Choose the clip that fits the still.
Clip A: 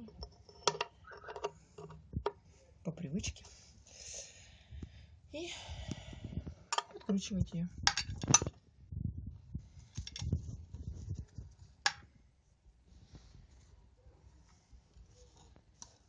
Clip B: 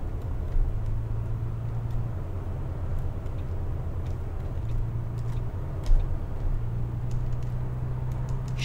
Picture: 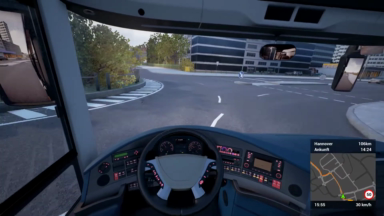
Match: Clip B